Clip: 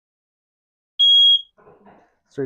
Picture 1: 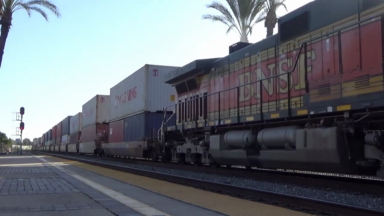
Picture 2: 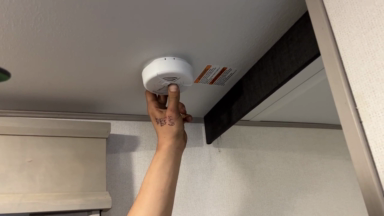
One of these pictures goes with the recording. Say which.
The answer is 2